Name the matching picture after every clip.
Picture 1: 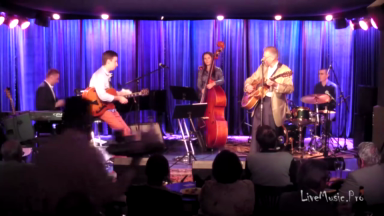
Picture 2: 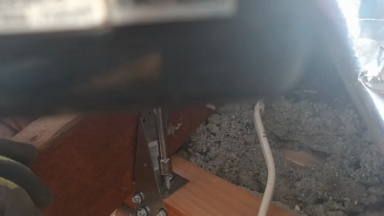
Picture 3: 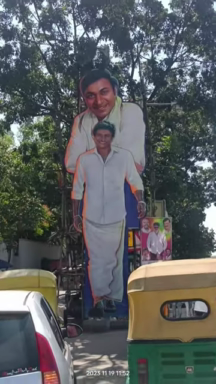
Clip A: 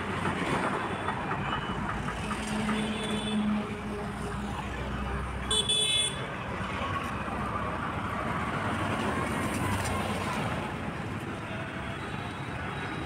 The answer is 3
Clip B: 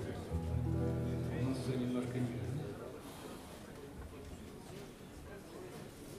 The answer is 1